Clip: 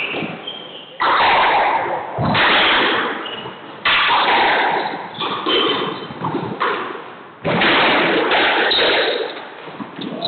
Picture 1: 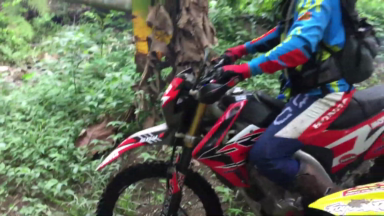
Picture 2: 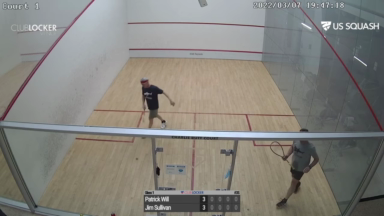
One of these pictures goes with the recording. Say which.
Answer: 2